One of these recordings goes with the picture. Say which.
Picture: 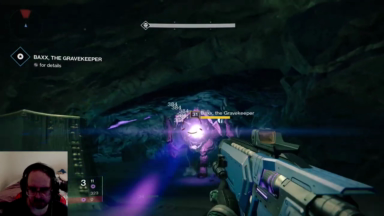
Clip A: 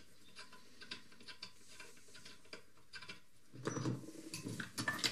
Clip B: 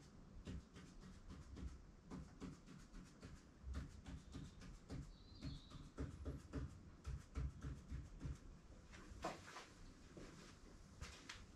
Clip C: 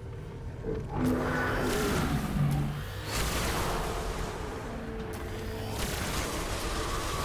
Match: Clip C